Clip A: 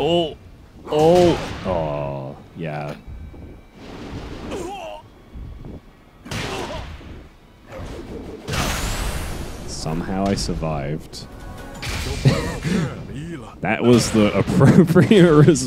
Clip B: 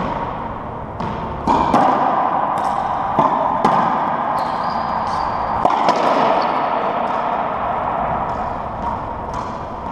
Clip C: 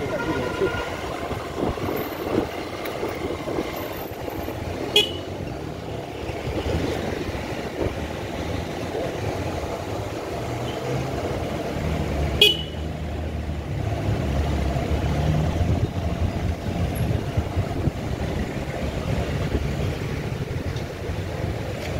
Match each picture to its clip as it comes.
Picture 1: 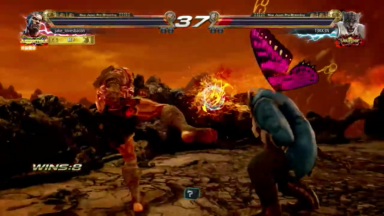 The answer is A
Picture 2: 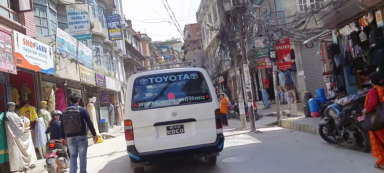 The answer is C